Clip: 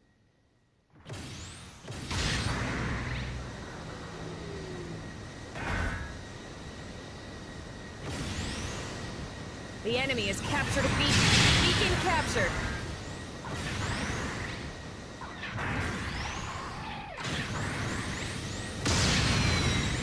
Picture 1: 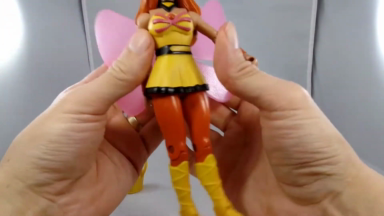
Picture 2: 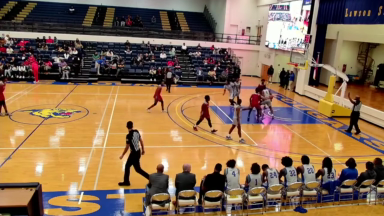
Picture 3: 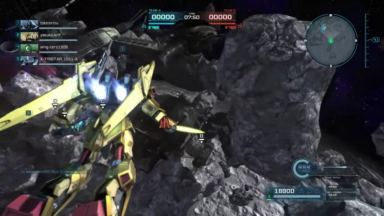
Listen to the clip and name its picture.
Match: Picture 3